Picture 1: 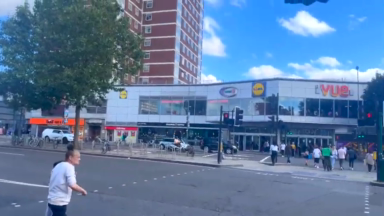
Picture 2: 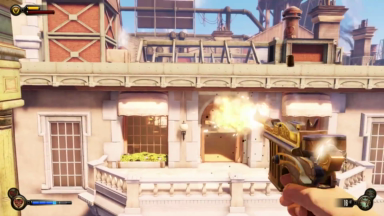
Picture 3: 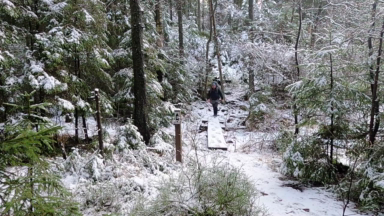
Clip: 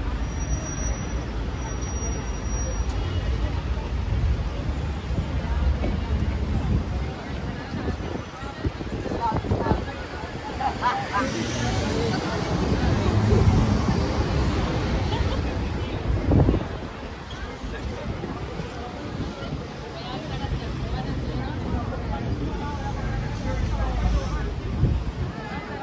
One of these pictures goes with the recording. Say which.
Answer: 1